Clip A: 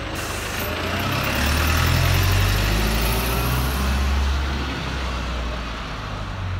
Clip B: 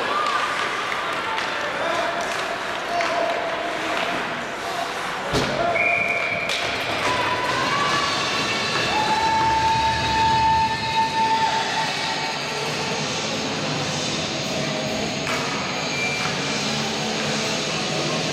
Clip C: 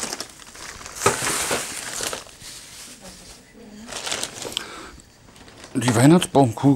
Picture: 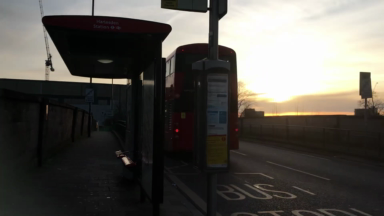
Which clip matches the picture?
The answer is A